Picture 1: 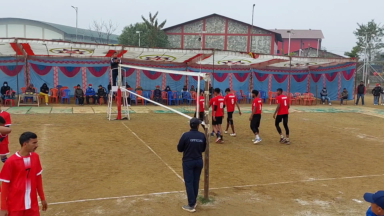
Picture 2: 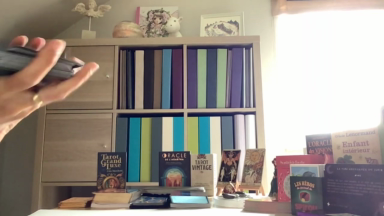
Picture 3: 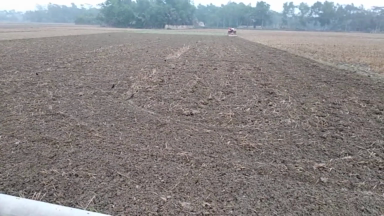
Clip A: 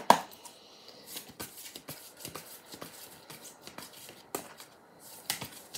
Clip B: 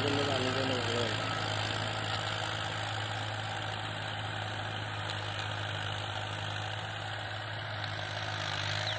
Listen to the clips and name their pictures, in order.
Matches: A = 2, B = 3